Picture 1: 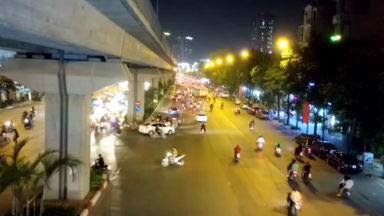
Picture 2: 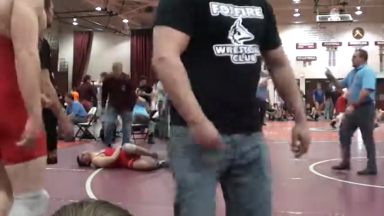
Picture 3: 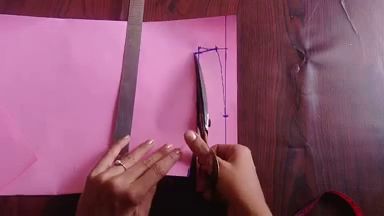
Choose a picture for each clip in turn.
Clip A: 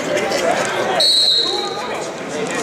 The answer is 2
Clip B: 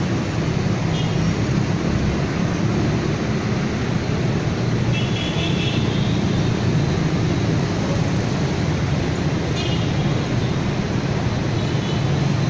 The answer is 1